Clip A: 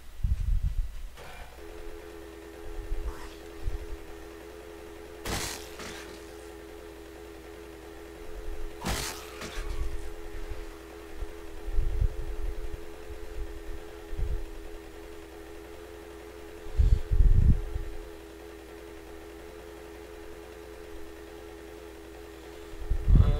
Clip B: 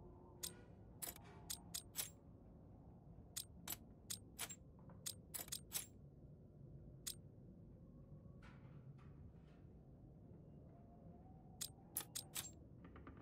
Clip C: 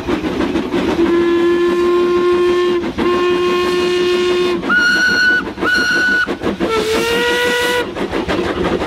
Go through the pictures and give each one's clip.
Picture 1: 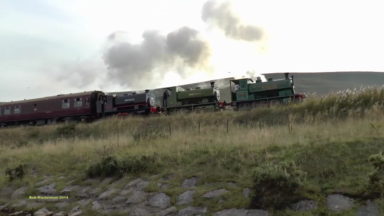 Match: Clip C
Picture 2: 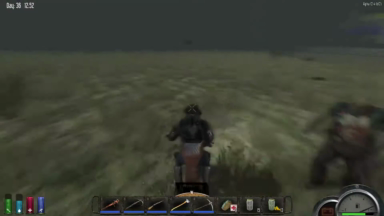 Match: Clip A